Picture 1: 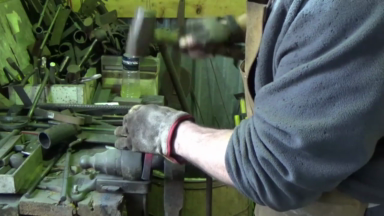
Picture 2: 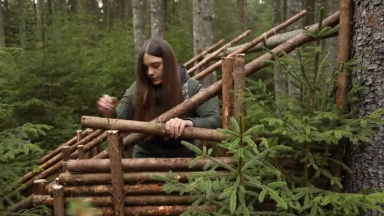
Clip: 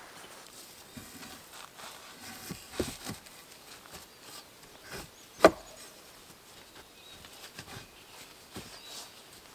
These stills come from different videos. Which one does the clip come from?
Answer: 2